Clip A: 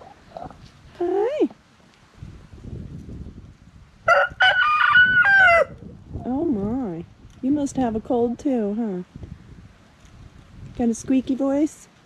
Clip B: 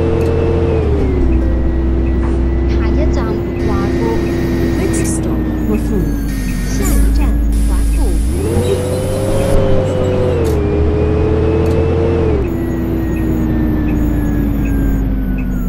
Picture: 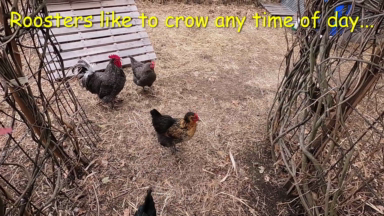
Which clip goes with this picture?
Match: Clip A